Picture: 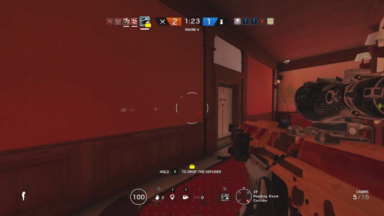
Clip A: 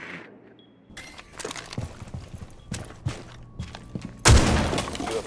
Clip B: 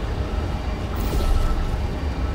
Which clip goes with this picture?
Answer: A